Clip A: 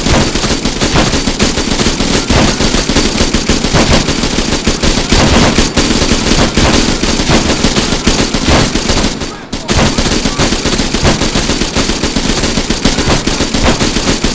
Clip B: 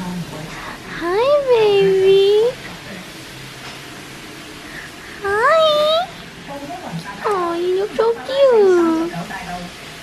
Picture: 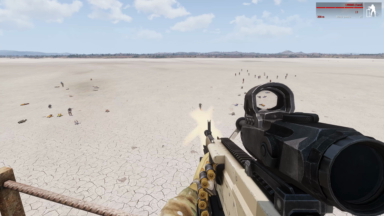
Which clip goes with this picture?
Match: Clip A